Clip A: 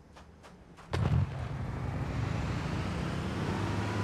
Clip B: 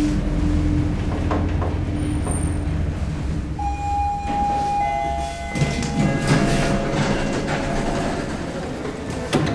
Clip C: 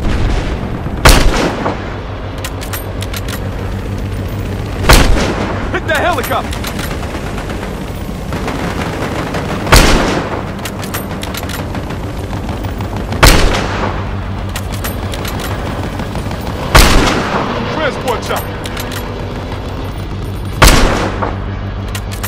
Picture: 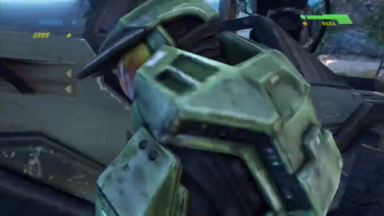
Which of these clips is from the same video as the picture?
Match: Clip A